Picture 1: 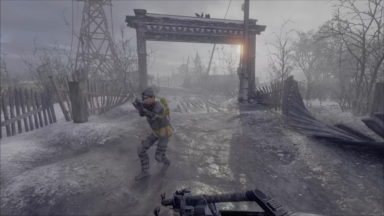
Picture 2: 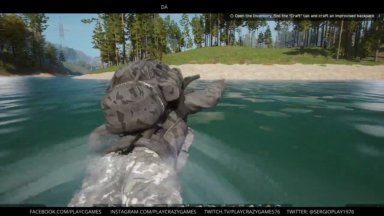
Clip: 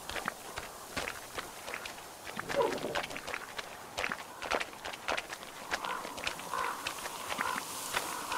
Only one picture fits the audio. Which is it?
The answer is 1